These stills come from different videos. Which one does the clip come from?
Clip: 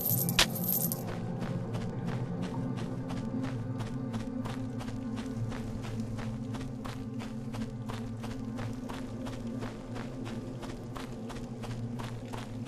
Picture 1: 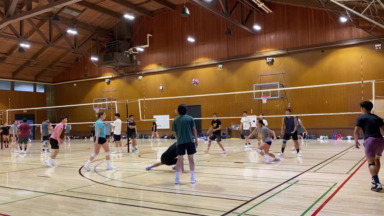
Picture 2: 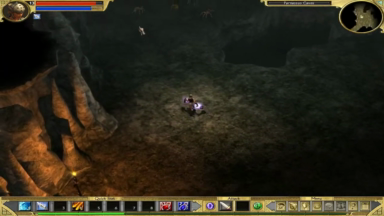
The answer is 2